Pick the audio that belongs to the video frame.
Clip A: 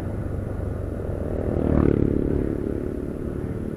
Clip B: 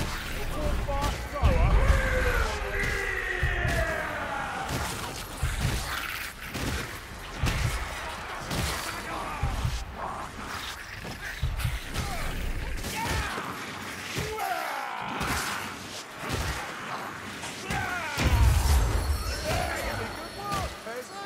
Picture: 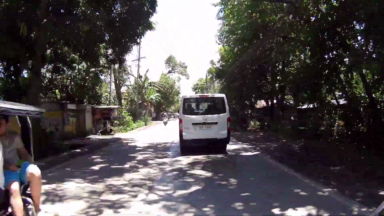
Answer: A